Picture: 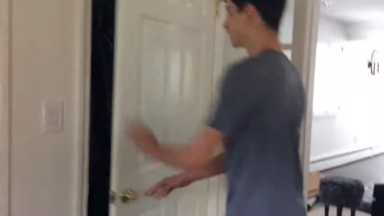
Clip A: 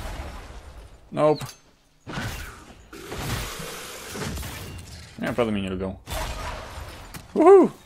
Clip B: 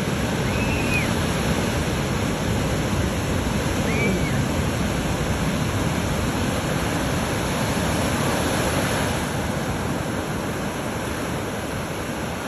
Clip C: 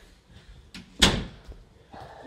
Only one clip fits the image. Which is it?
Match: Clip C